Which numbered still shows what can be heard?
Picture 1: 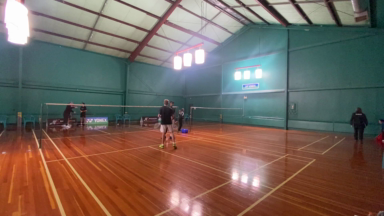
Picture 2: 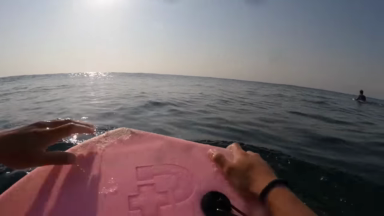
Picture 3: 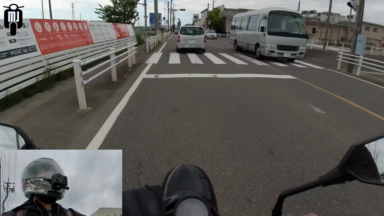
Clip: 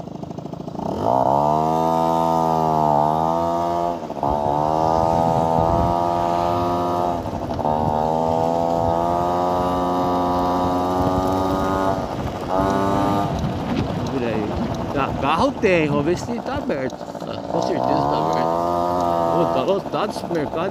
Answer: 3